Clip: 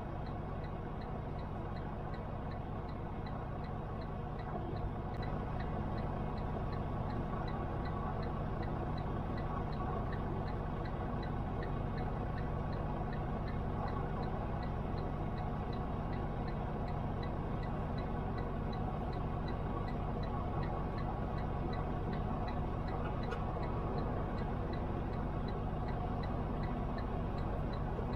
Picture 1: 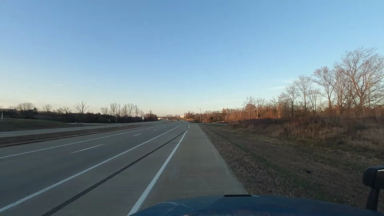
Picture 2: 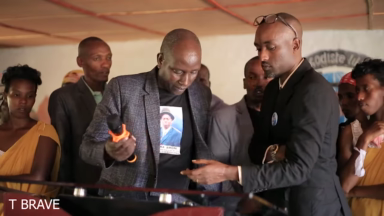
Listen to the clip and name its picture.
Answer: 1